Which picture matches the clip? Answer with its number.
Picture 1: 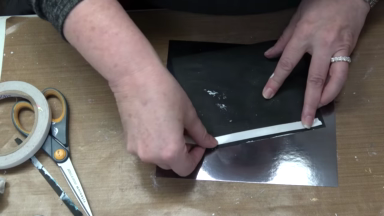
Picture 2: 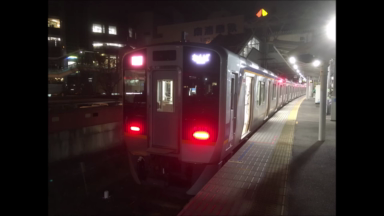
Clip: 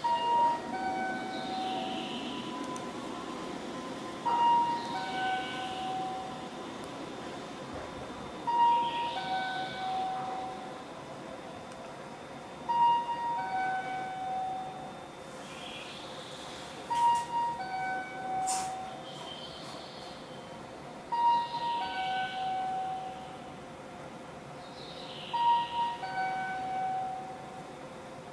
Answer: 2